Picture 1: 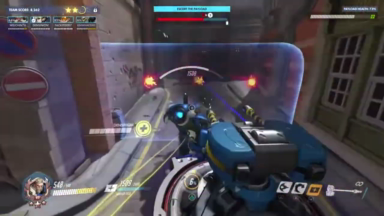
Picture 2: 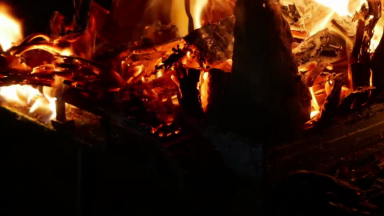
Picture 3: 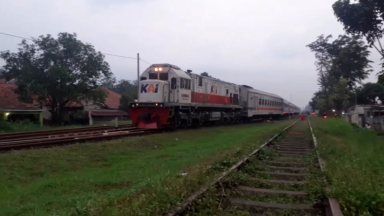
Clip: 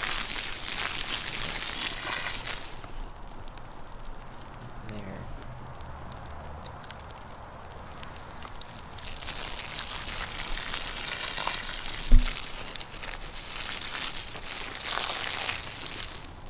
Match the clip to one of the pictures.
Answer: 2